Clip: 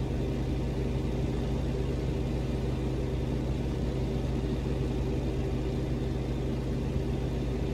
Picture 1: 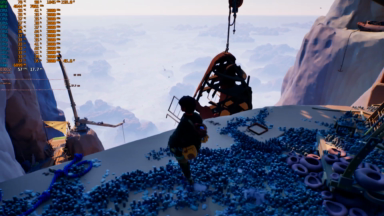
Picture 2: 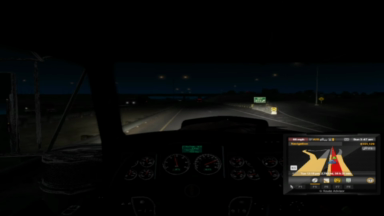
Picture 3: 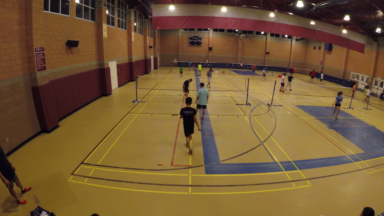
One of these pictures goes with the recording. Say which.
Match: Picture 2